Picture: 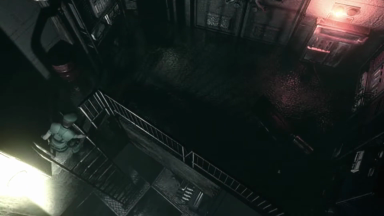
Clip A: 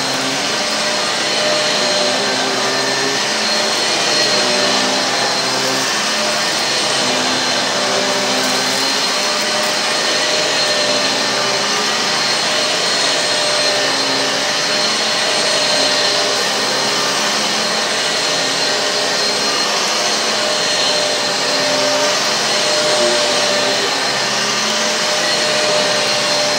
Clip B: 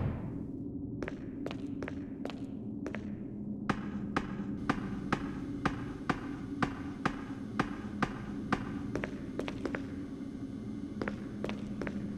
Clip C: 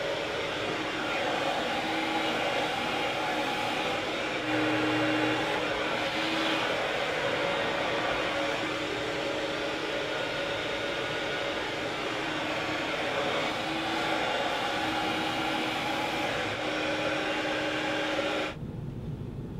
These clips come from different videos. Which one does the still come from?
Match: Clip B